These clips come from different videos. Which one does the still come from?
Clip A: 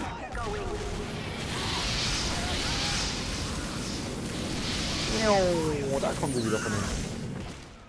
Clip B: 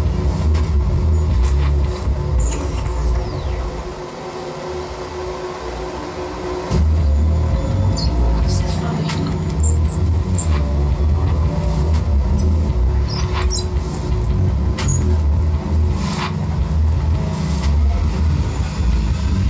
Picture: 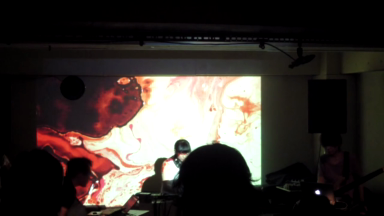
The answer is B